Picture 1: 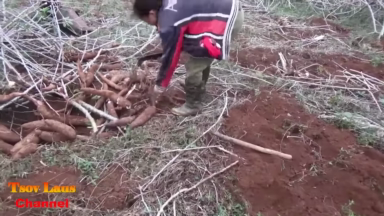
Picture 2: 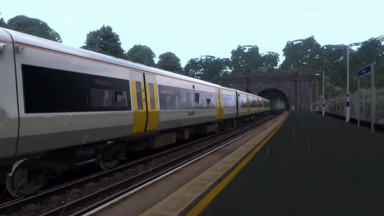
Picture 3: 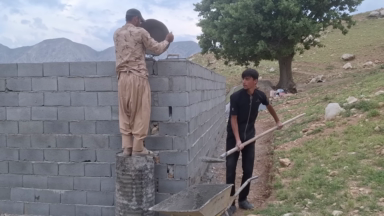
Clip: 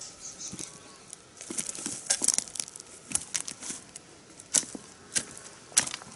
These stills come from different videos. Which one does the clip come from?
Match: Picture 1